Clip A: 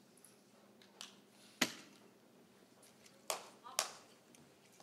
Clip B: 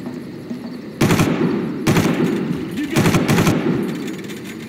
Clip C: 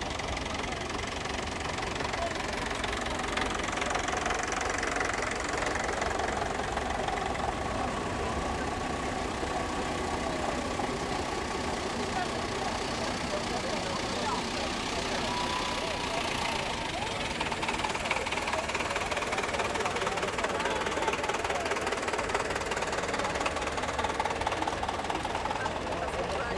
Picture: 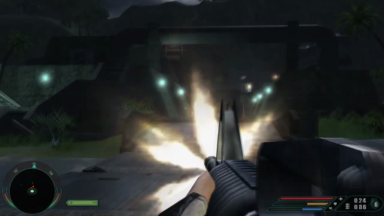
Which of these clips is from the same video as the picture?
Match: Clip B